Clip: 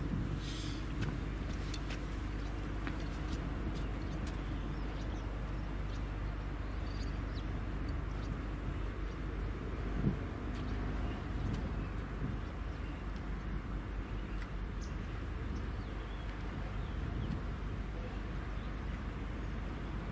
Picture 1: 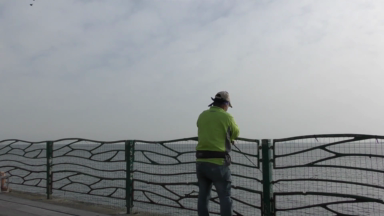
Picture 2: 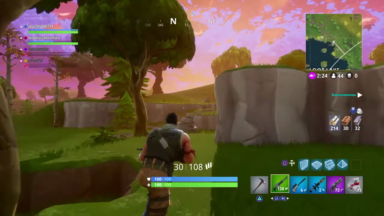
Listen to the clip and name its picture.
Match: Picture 1